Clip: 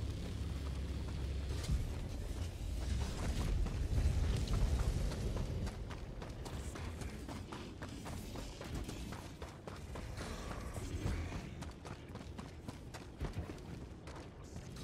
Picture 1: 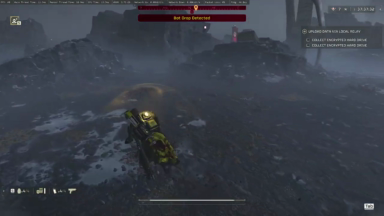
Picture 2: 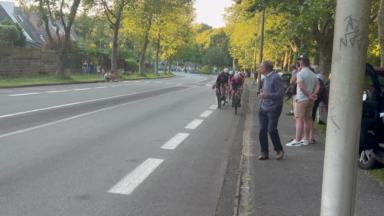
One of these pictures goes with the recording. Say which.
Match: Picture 1